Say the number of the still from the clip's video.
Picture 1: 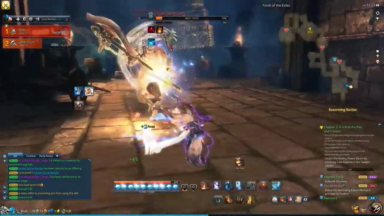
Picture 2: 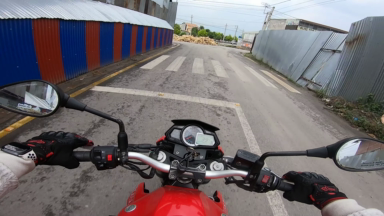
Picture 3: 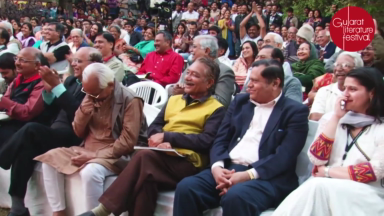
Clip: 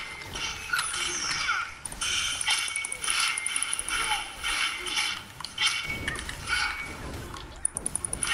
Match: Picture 1